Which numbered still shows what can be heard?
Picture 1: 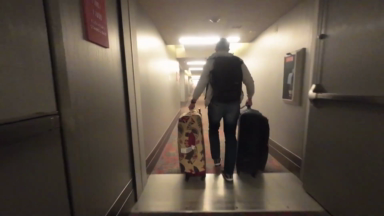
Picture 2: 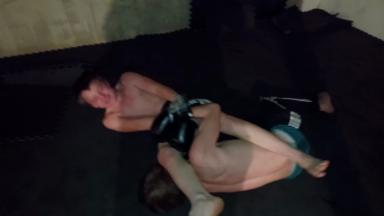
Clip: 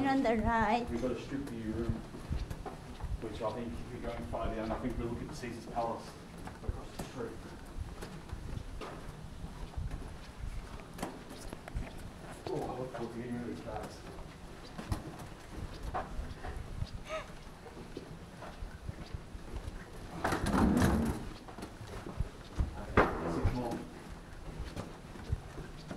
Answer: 1